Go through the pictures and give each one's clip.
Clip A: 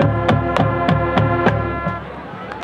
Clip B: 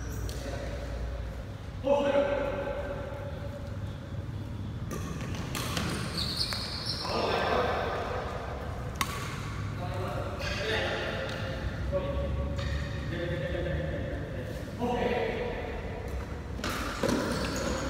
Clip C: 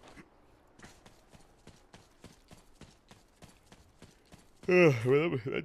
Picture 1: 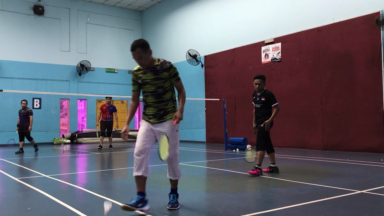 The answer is B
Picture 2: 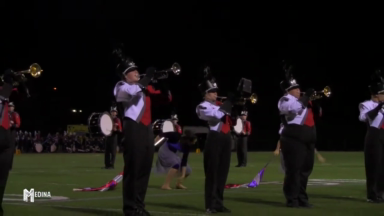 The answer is A